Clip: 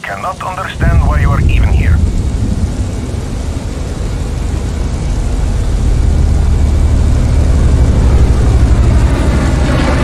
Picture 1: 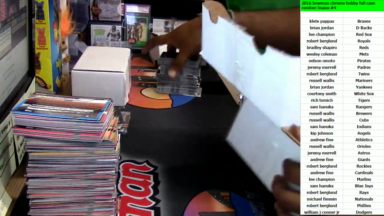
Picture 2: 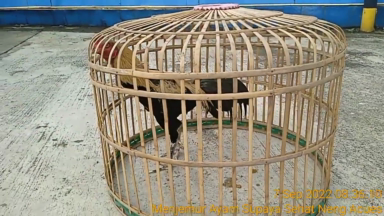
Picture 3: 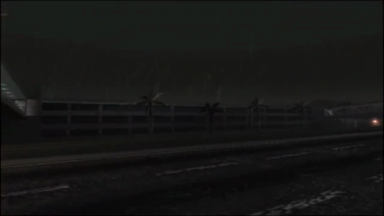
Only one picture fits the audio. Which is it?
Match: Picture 3